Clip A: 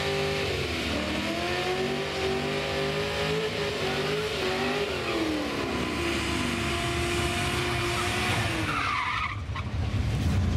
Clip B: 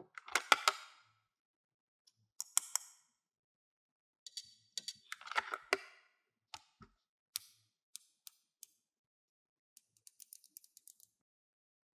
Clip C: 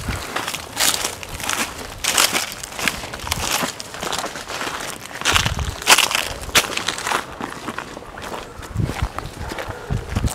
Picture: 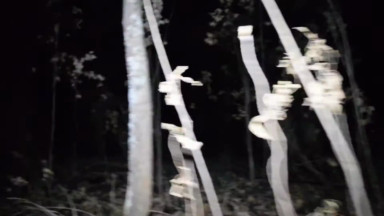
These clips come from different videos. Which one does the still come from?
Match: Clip C